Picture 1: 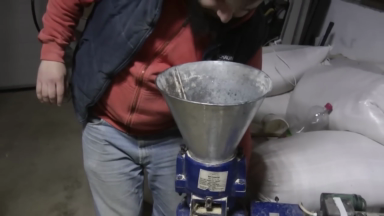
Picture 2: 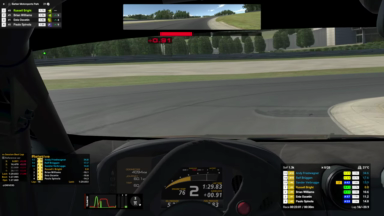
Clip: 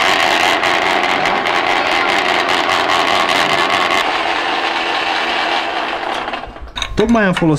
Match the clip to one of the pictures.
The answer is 1